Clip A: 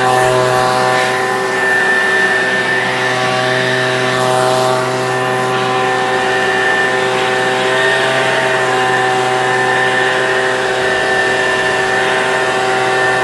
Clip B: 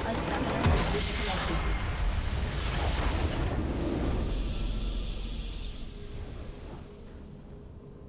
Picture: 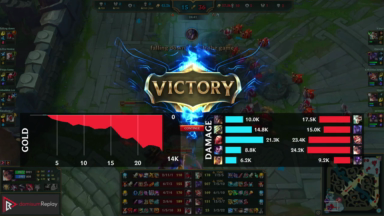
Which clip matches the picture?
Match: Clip B